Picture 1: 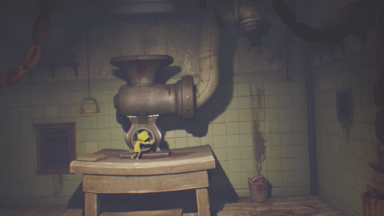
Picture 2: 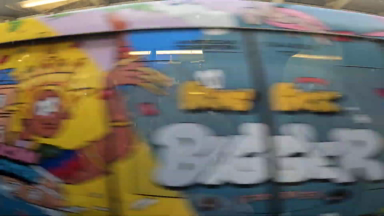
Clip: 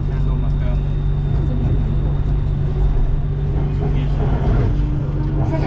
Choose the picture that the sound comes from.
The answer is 2